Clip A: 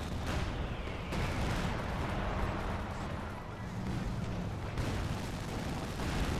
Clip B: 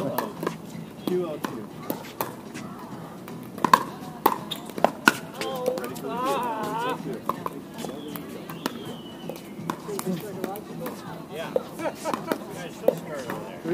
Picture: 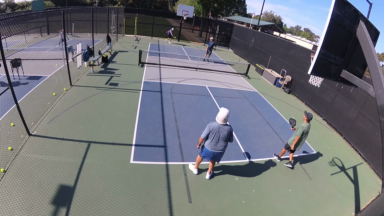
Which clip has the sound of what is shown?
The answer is B